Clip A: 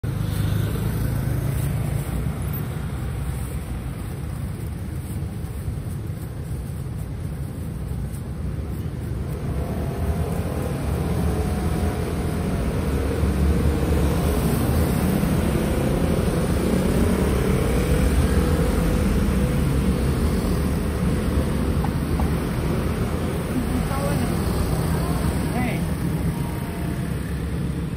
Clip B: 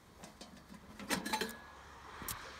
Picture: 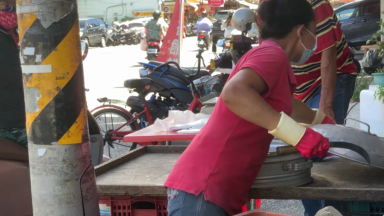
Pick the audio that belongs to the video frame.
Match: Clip A